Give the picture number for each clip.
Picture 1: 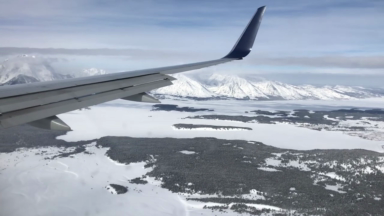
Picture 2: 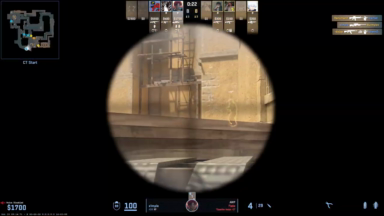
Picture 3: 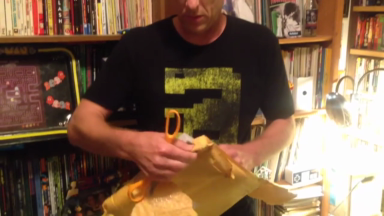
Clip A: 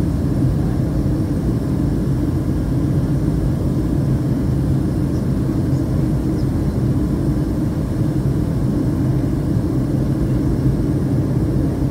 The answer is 1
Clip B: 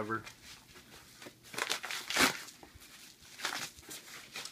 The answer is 3